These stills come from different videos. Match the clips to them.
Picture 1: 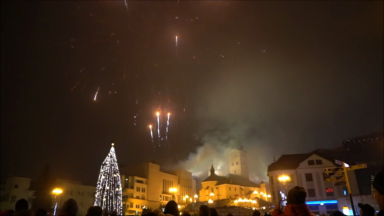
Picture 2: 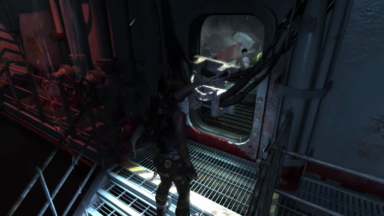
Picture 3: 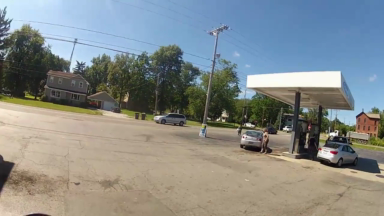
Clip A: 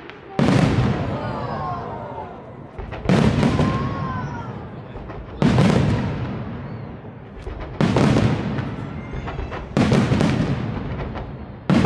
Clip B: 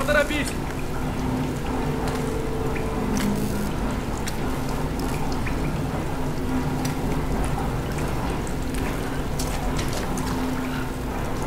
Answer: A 1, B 2